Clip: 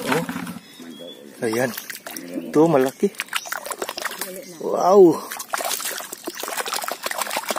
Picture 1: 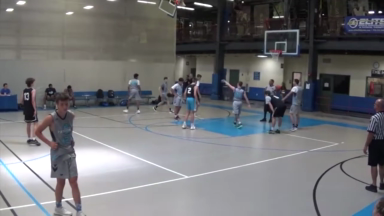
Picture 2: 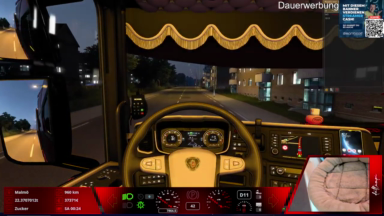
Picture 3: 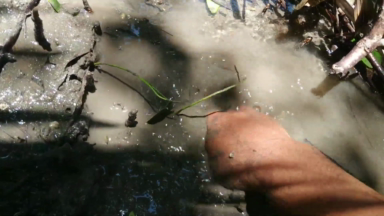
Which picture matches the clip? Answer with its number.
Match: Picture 3